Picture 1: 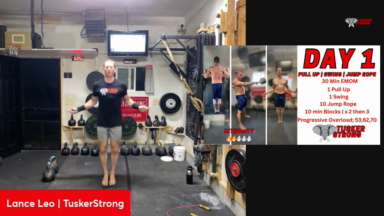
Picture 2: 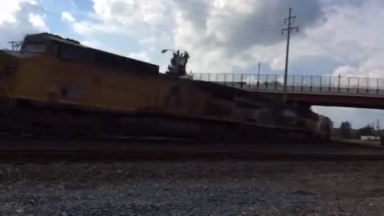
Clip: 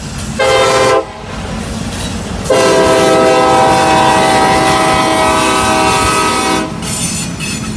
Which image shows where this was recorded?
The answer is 2